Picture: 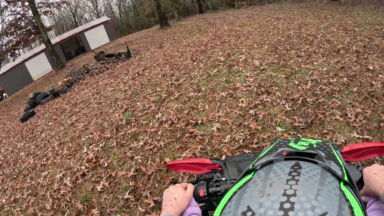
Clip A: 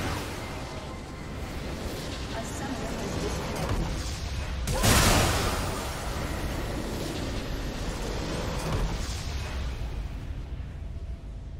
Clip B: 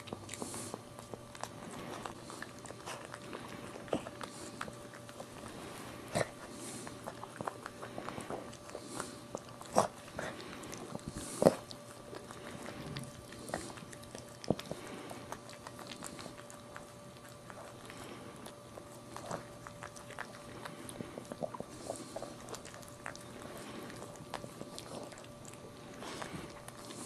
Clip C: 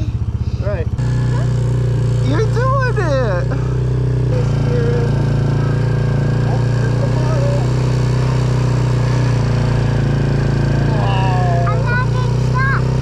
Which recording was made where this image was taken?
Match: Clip C